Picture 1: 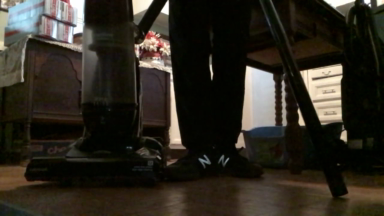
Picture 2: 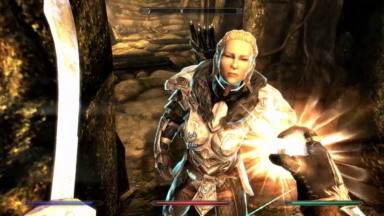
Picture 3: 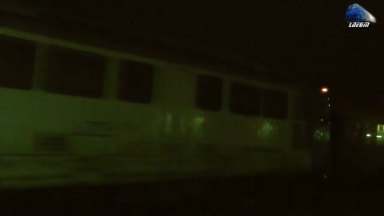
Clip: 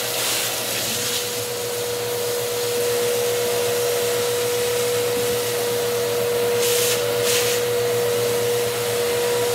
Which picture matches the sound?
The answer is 1